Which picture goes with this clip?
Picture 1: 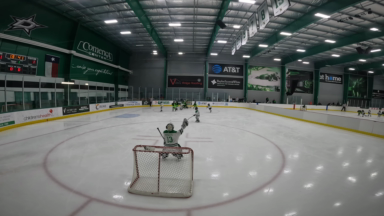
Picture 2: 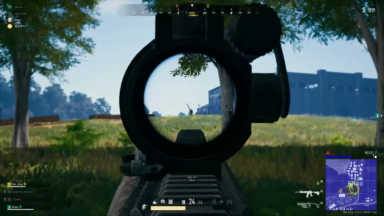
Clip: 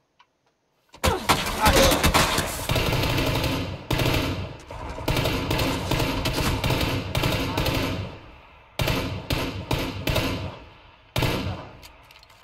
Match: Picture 2